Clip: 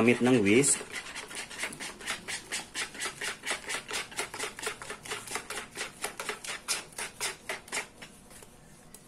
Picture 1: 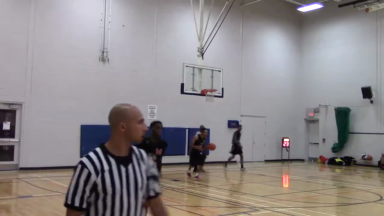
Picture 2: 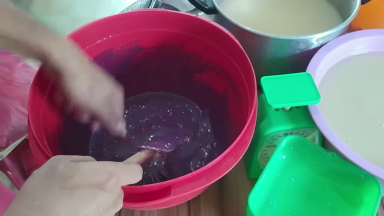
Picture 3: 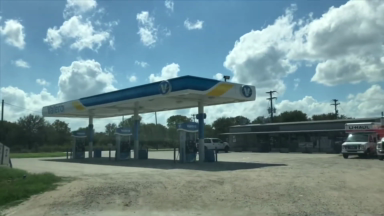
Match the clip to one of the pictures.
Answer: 2